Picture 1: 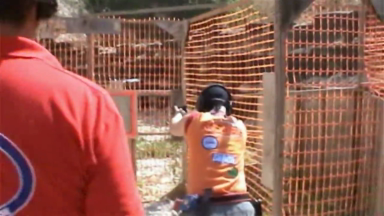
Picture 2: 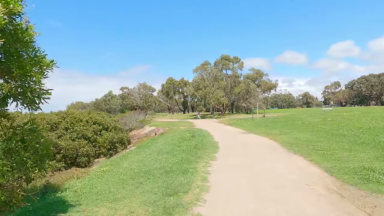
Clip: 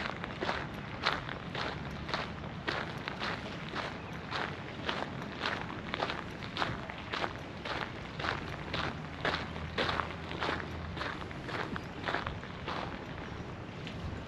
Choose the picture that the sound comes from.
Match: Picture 2